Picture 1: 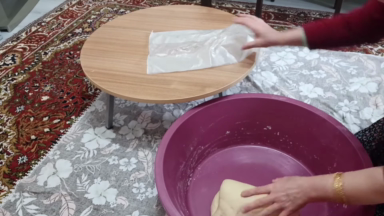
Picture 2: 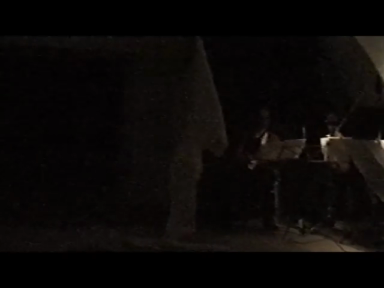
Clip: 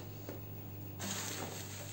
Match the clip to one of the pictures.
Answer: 1